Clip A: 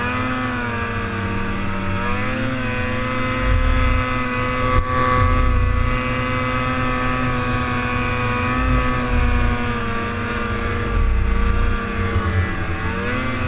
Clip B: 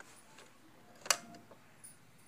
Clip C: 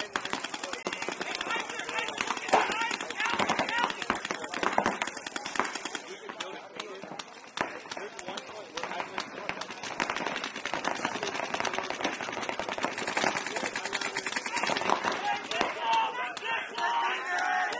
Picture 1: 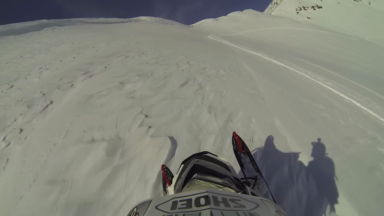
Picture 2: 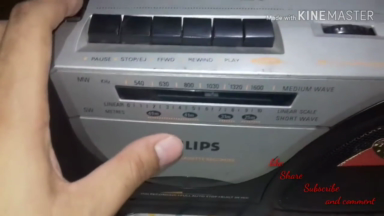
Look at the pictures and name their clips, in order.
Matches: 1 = A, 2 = B